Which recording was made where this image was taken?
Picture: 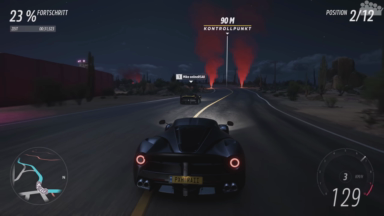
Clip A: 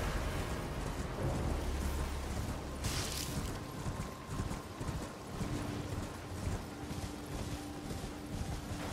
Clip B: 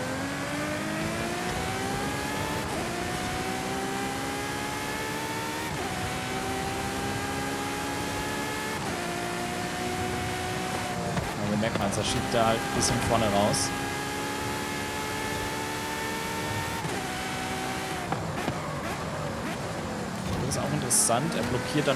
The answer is B